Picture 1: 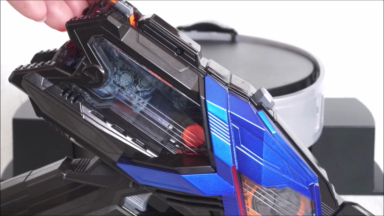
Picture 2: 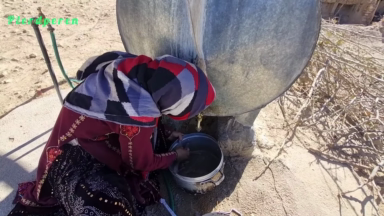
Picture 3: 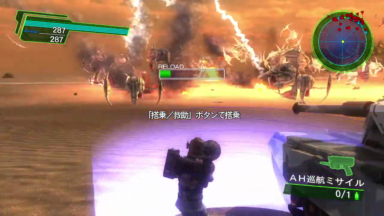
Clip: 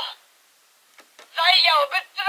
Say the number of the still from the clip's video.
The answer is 1